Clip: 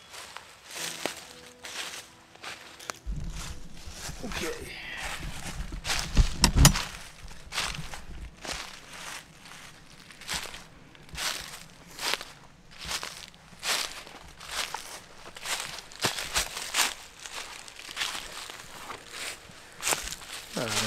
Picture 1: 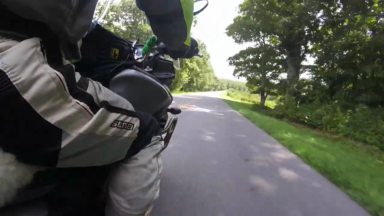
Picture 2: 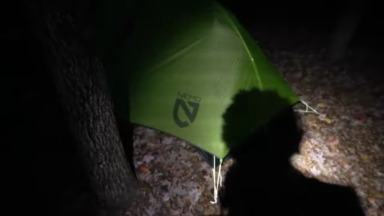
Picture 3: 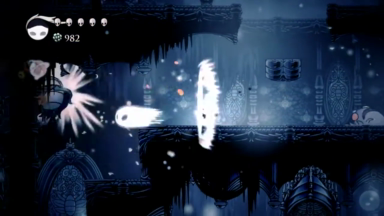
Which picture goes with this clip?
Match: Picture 2